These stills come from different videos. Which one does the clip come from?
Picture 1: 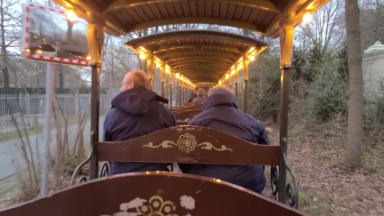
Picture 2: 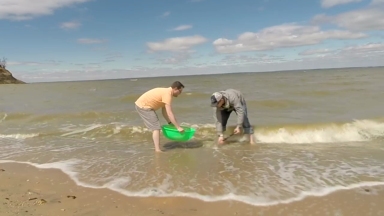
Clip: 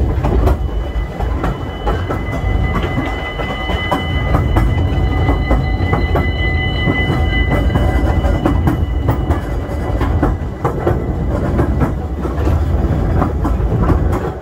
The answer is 1